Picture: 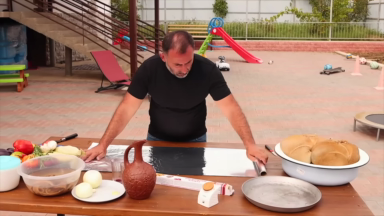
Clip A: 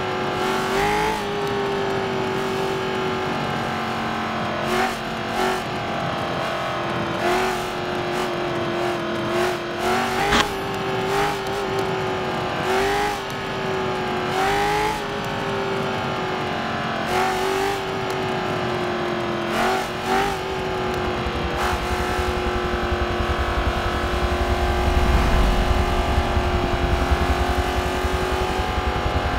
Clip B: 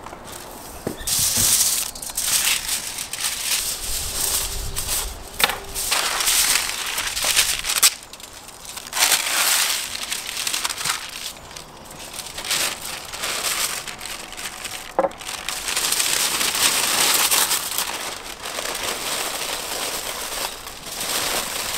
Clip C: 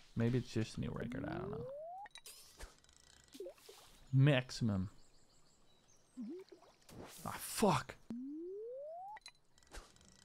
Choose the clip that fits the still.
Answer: B